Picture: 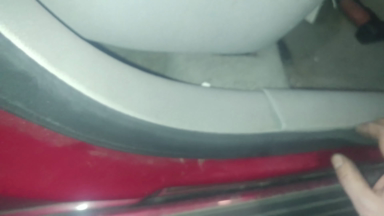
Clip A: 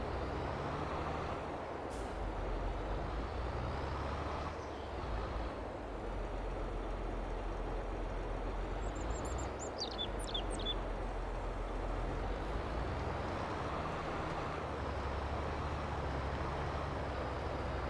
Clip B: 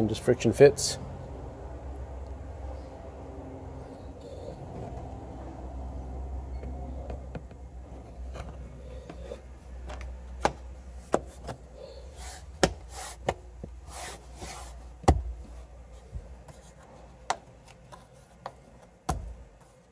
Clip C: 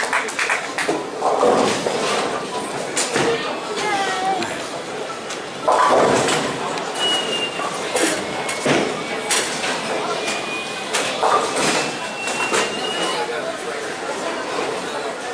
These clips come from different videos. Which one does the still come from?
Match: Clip B